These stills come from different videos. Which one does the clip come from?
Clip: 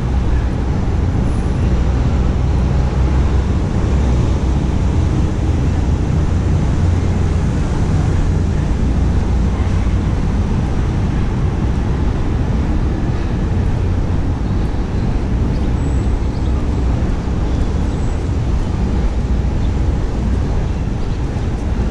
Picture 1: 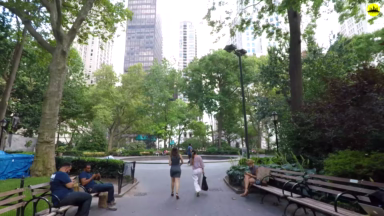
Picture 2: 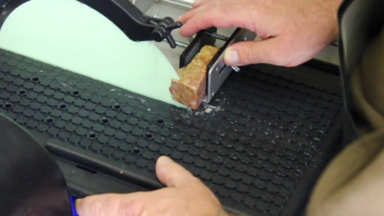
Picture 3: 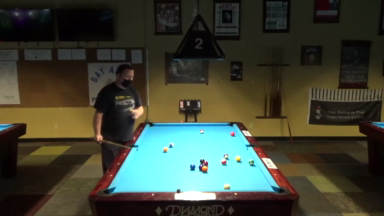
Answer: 1